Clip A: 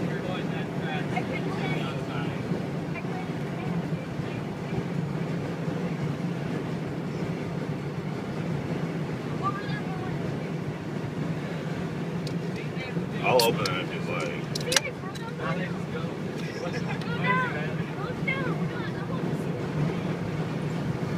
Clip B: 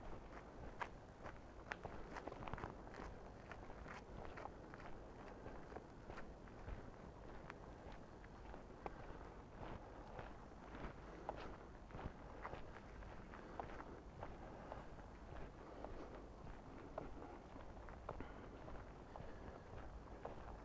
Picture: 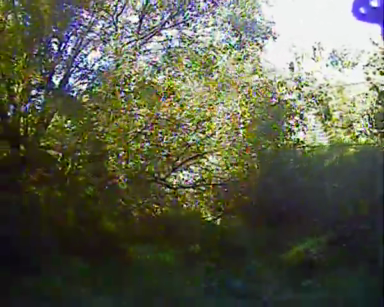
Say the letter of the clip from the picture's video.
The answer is B